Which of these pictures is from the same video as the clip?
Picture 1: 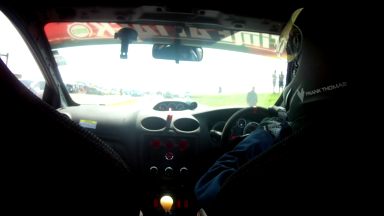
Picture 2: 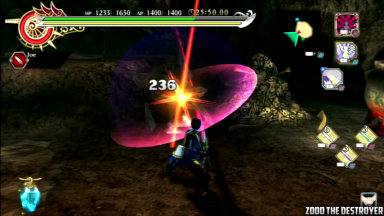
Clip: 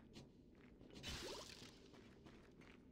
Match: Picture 2